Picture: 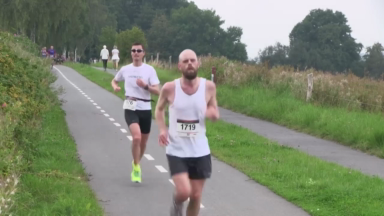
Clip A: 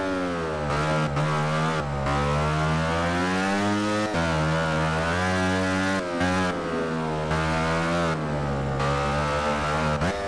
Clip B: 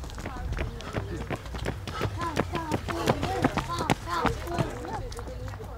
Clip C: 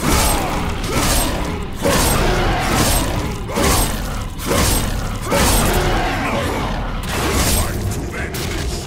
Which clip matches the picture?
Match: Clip B